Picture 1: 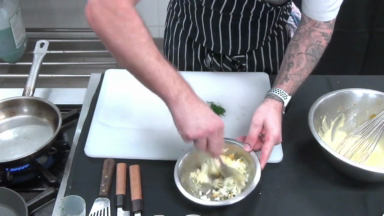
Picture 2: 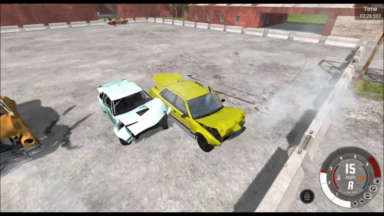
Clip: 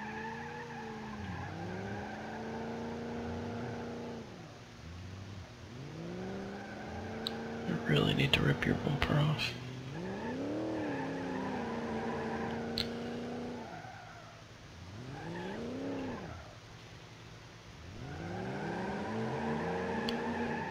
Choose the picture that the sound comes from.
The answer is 2